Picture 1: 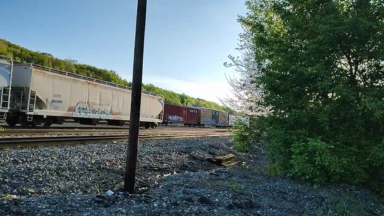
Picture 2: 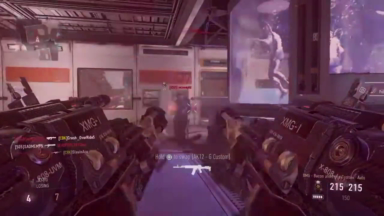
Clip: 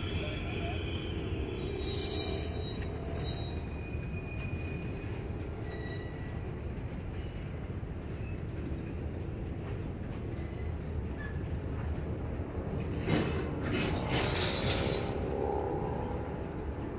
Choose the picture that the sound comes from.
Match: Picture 1